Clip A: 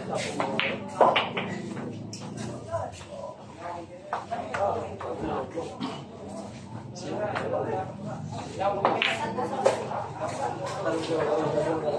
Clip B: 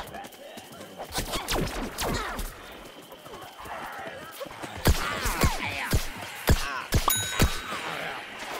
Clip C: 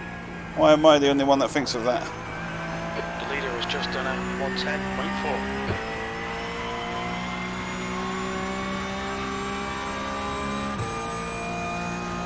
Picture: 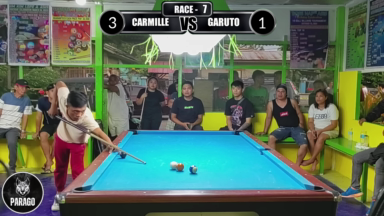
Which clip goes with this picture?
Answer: A